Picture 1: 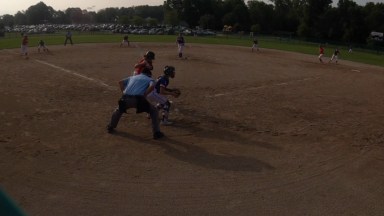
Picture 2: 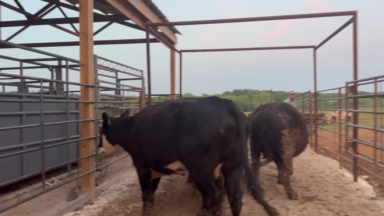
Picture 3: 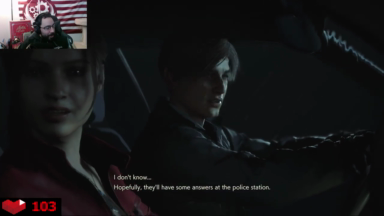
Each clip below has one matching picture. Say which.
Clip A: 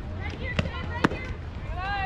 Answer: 1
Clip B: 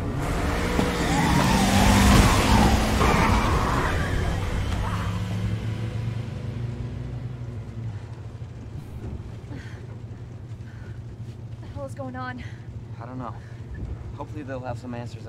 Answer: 3